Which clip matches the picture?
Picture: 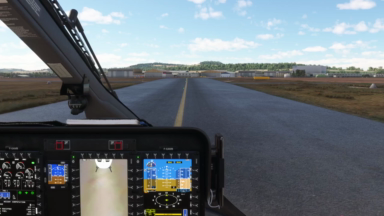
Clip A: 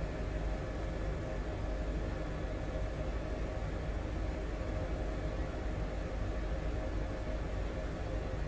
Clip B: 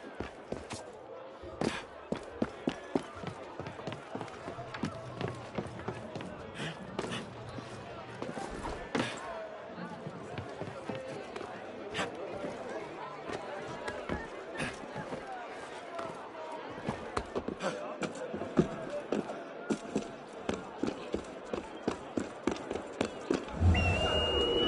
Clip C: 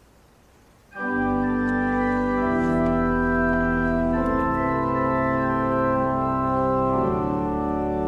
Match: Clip A